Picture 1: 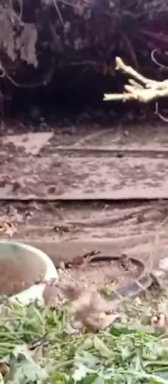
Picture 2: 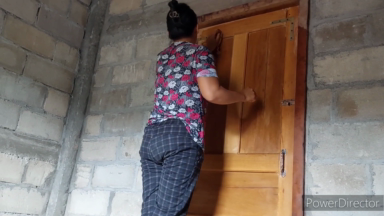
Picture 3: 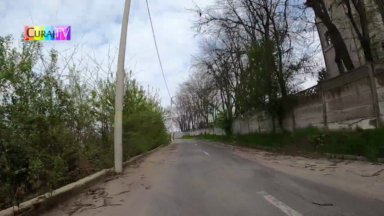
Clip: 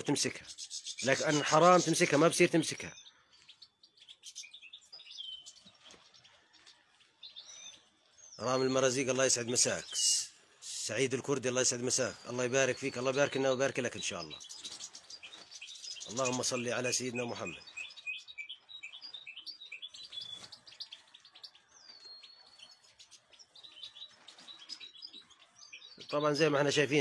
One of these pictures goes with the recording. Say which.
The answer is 1